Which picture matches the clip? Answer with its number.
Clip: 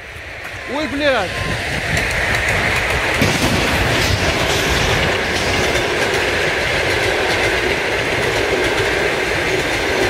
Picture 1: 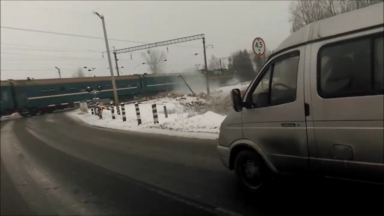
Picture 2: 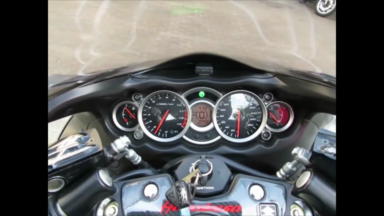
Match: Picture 1